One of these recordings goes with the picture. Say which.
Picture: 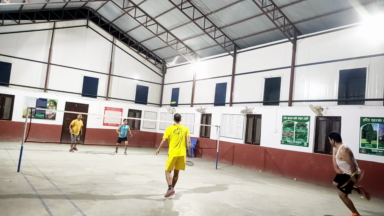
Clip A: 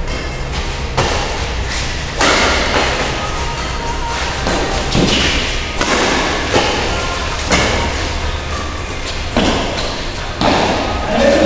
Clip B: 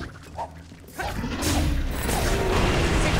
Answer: A